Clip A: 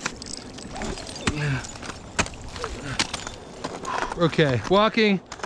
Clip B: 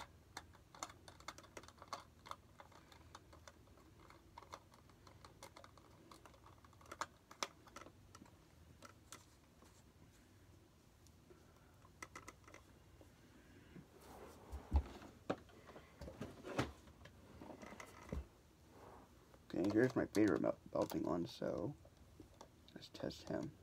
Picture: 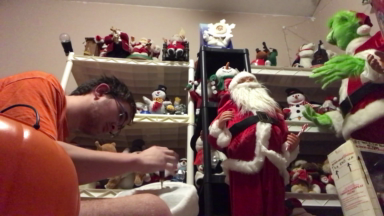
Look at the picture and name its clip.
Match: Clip B